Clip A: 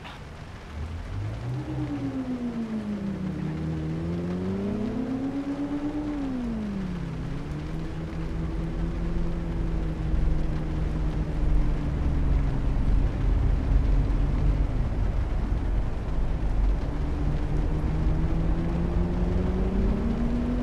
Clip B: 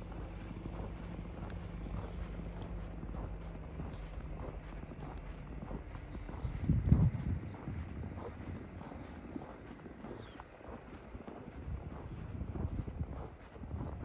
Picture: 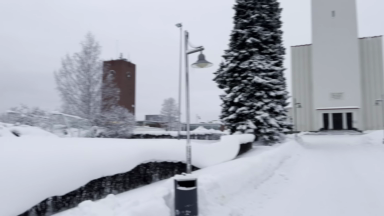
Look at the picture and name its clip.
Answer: B